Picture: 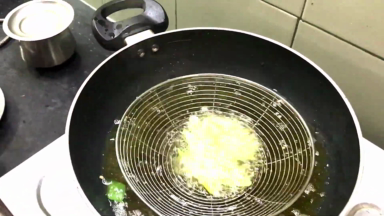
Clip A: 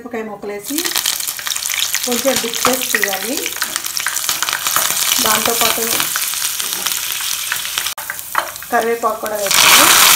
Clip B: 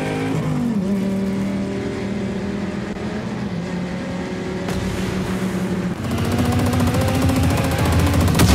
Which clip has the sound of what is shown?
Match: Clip A